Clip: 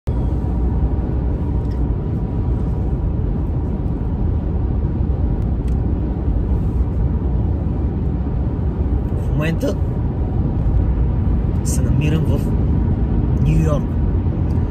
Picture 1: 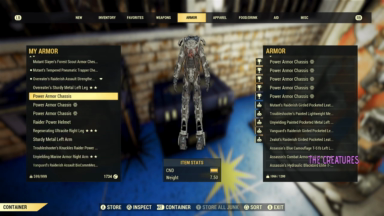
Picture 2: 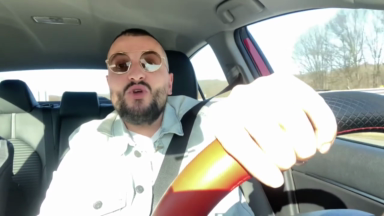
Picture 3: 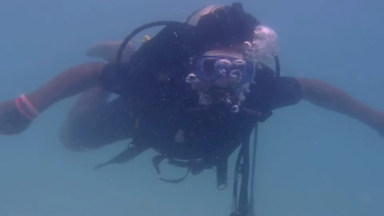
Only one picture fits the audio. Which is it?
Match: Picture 2